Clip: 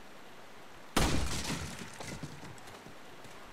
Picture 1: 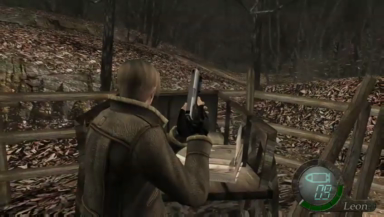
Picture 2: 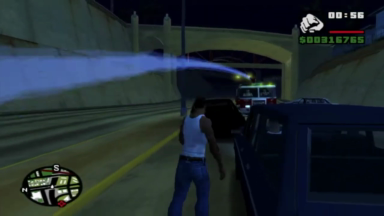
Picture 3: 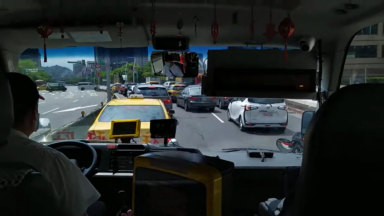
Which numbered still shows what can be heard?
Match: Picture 1